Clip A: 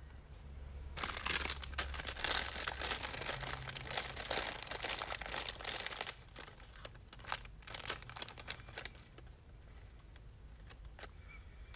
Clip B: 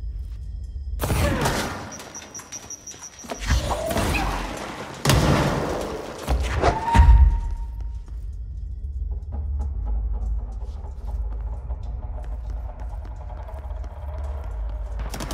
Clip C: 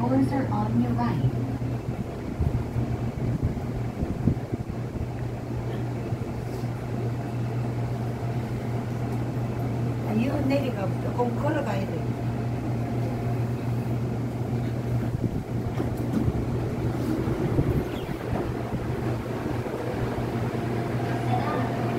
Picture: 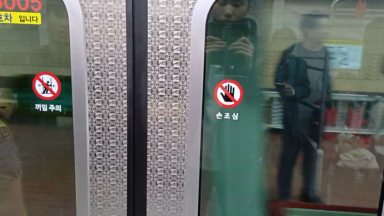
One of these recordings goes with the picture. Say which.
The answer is C